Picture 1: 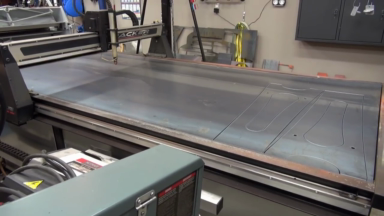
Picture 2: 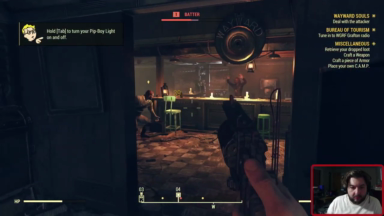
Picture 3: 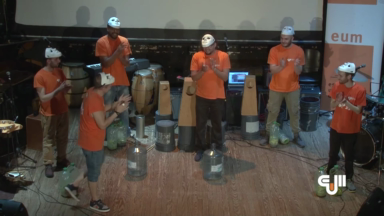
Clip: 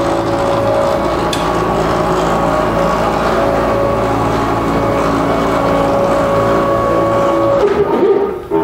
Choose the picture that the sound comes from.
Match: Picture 1